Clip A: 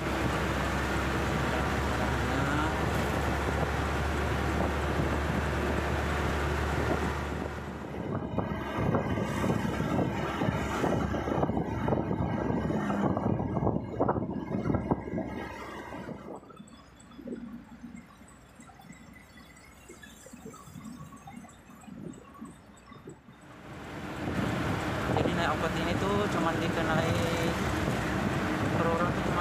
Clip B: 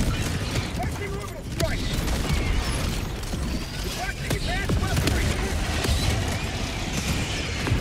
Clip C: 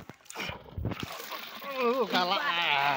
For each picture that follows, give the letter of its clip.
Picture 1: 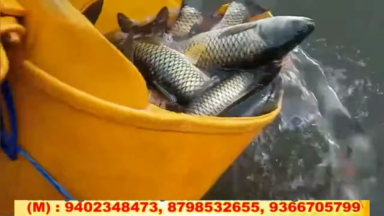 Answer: C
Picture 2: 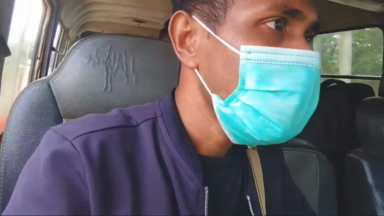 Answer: A